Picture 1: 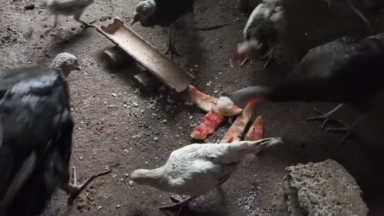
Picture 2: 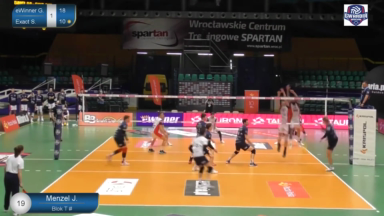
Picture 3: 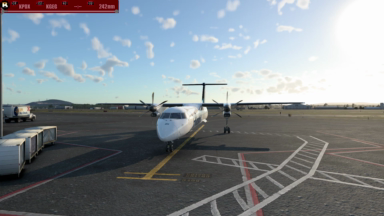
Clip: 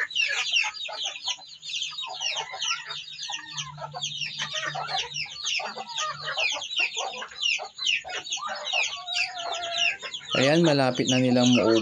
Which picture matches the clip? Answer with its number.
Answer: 1